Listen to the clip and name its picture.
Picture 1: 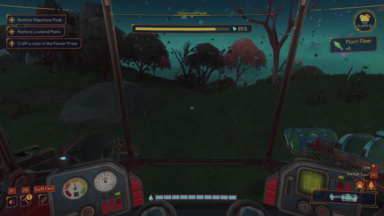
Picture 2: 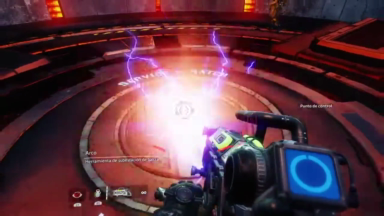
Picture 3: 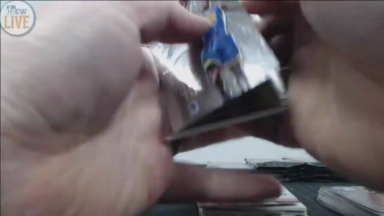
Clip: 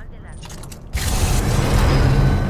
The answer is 2